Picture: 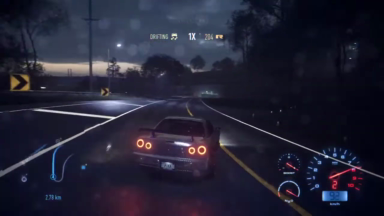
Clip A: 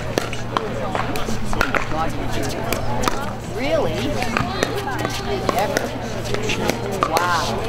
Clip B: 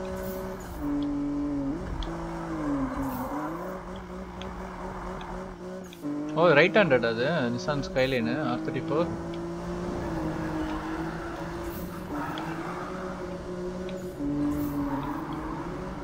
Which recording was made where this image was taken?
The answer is B